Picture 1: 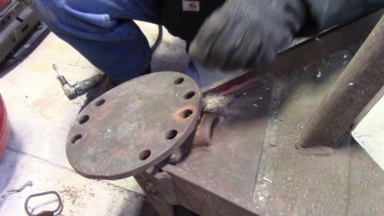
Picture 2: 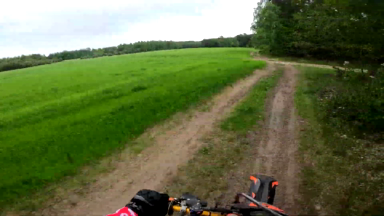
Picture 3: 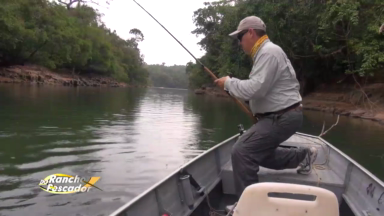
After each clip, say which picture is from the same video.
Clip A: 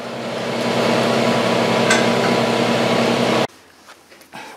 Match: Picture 1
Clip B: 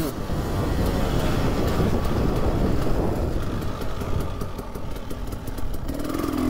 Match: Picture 2